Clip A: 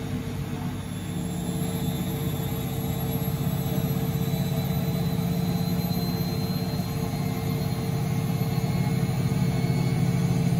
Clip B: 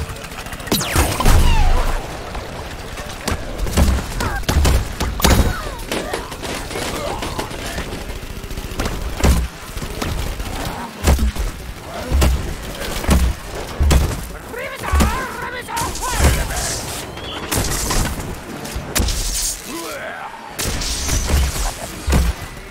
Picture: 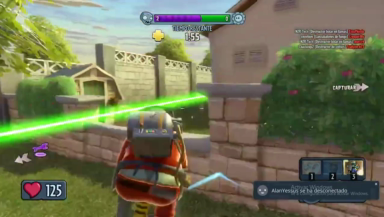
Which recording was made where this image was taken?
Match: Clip B